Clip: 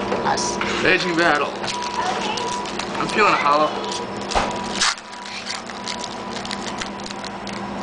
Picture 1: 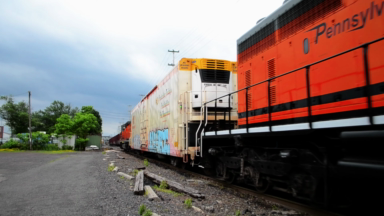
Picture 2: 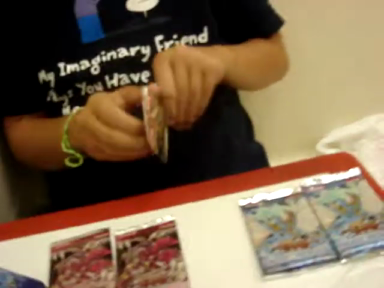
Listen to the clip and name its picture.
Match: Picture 2